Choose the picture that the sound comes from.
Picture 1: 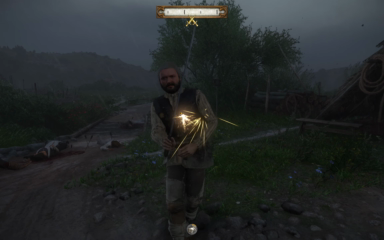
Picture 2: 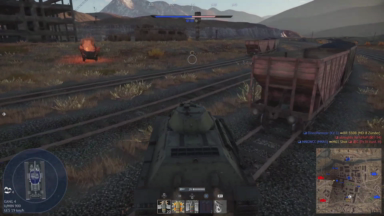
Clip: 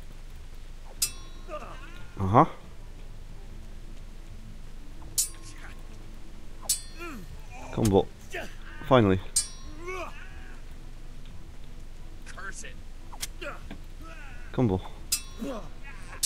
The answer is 1